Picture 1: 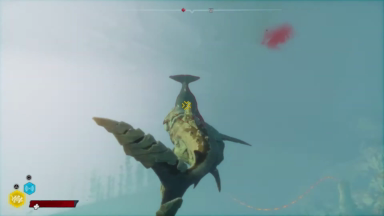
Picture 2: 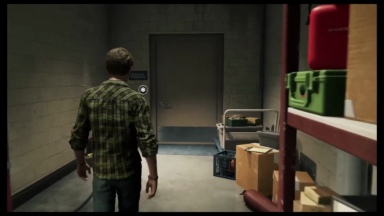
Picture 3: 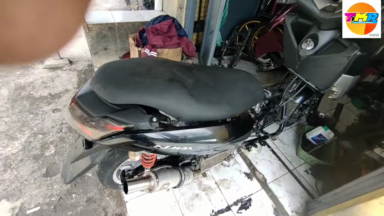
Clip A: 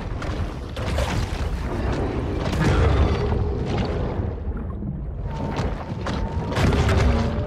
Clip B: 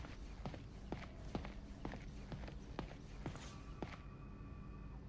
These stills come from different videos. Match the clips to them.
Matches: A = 1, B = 2